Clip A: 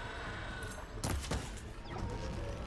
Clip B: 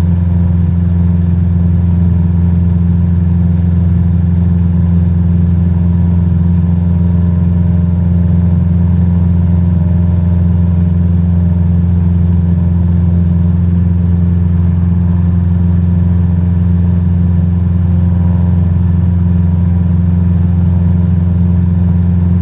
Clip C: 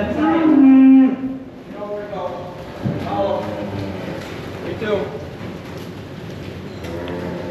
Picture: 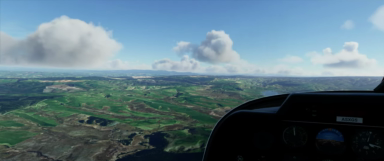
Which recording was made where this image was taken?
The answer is B